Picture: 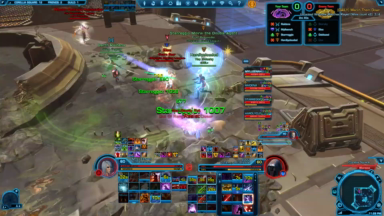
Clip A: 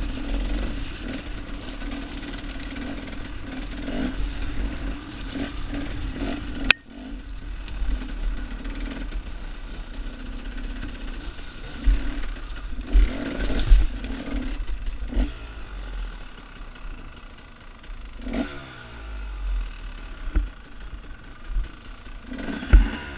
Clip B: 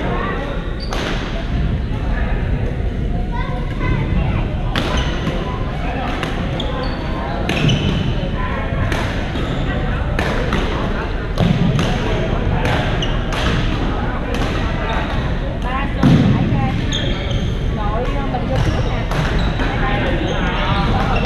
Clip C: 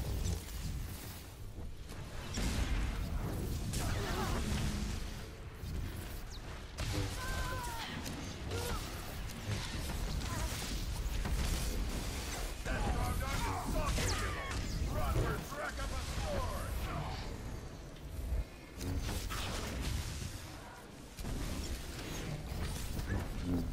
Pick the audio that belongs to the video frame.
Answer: C